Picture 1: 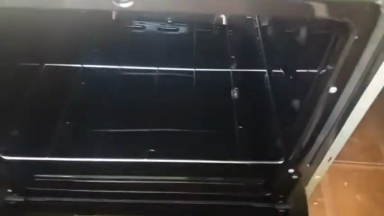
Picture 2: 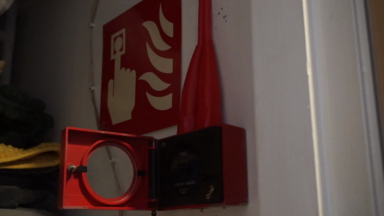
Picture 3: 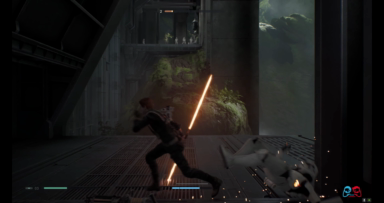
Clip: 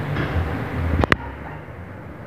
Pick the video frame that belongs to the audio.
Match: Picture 1